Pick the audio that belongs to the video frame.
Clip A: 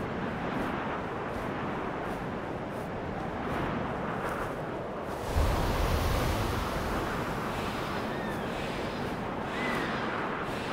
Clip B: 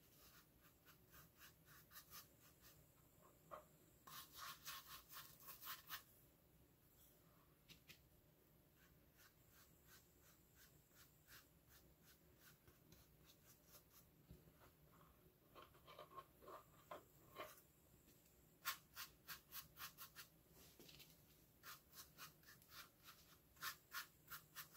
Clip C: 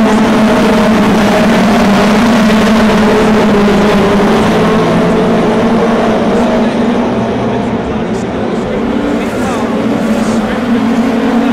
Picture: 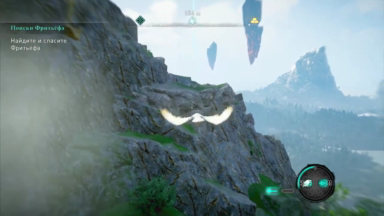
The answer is A